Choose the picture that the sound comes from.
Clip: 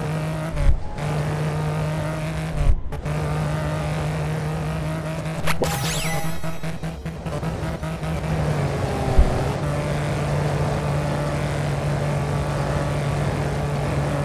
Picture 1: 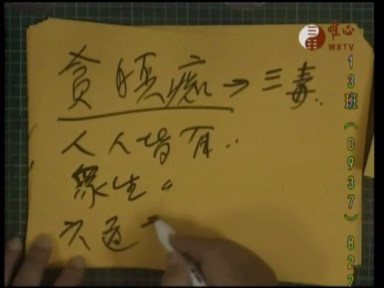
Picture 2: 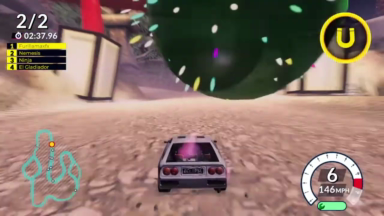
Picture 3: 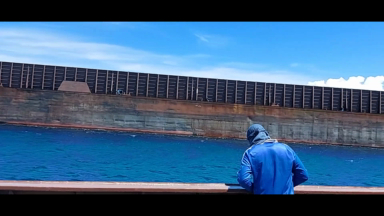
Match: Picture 2